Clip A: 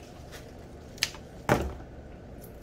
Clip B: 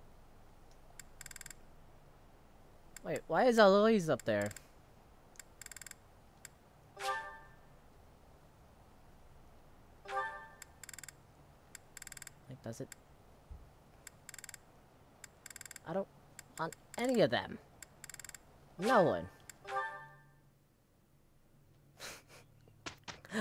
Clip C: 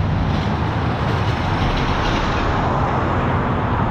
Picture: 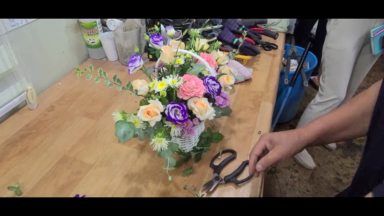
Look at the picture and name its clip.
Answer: A